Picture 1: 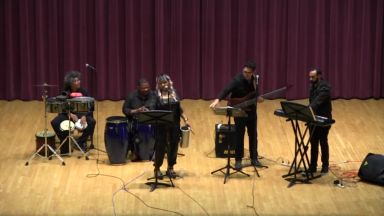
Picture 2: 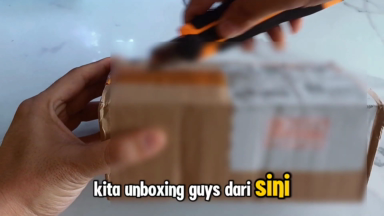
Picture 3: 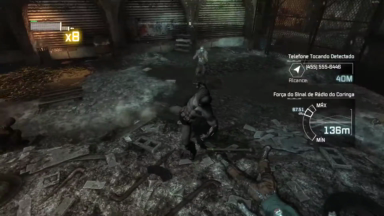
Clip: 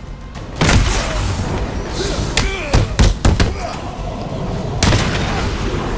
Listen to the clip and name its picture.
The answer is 3